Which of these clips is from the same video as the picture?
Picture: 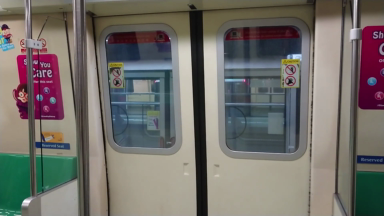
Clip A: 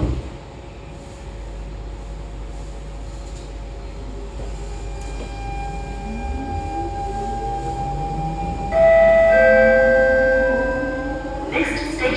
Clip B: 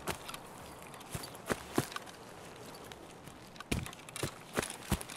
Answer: A